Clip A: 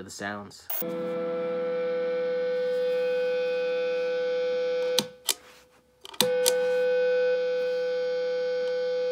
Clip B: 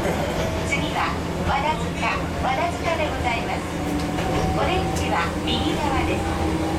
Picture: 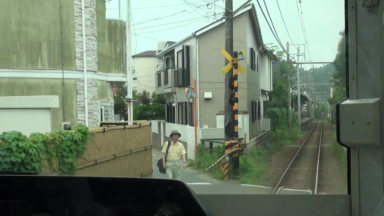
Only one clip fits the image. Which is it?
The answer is B